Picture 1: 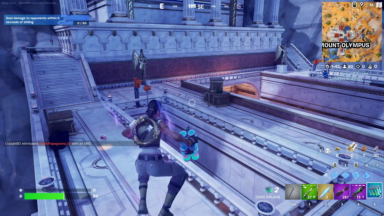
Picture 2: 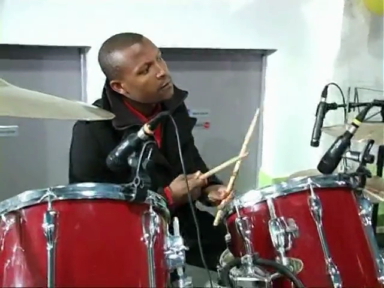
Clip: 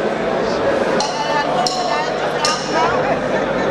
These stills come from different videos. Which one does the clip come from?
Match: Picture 2